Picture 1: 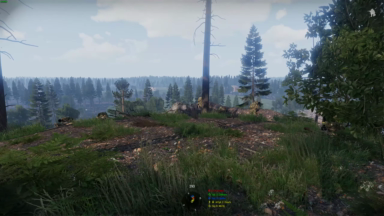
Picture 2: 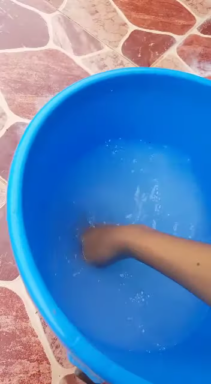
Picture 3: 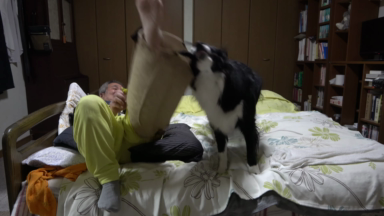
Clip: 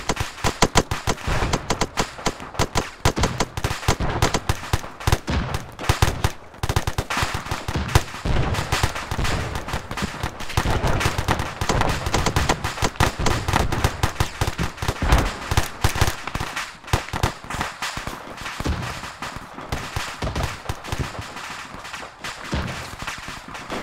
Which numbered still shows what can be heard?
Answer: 1